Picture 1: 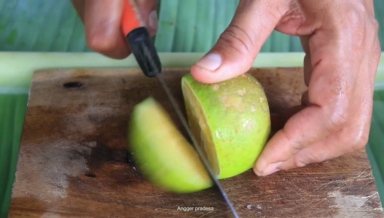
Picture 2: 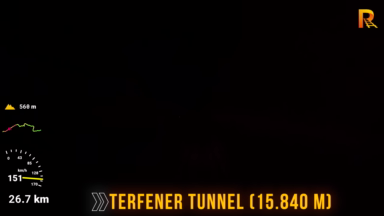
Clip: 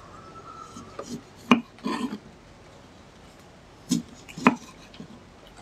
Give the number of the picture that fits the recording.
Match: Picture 1